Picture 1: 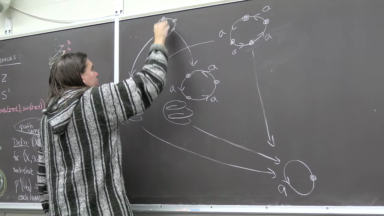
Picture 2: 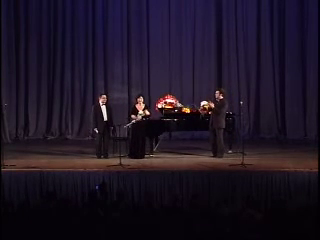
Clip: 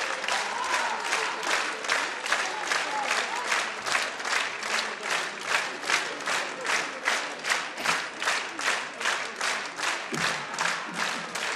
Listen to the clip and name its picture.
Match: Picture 2